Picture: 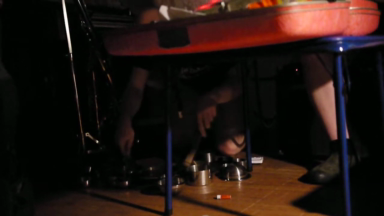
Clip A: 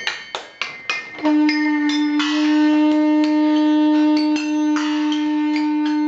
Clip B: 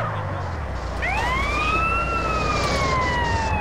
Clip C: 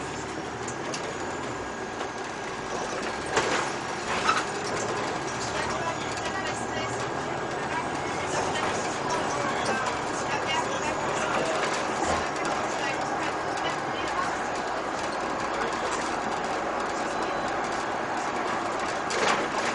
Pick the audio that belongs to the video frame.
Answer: A